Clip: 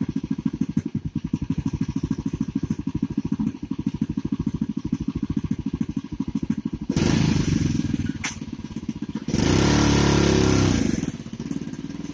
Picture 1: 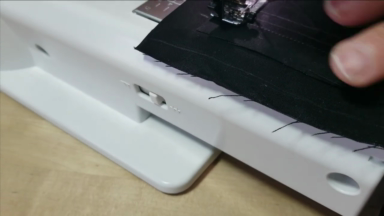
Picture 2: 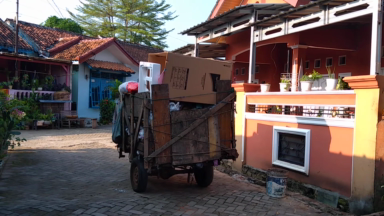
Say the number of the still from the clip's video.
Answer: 2